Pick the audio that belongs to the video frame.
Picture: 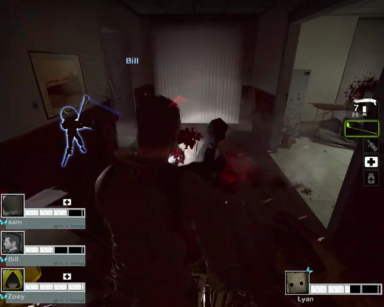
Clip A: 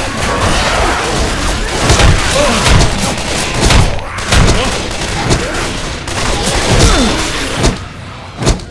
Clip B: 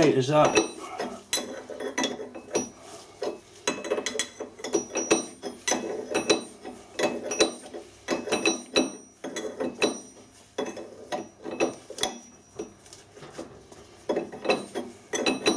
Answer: A